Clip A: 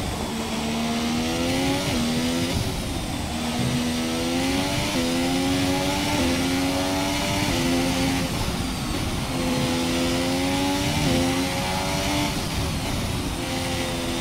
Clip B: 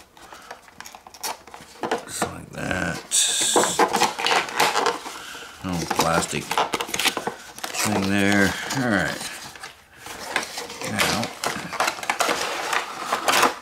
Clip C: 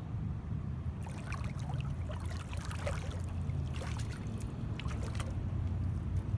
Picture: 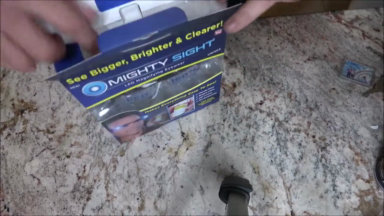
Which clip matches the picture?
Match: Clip B